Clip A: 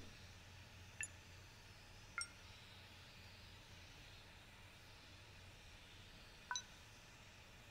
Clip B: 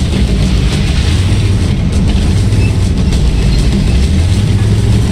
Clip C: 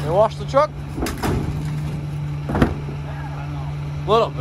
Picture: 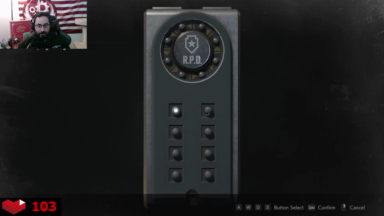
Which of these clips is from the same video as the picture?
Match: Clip A